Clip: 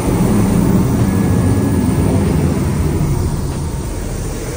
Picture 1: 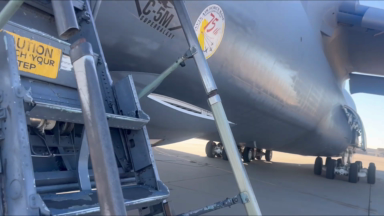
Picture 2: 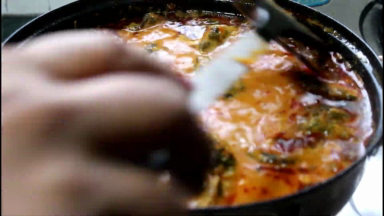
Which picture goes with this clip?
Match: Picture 1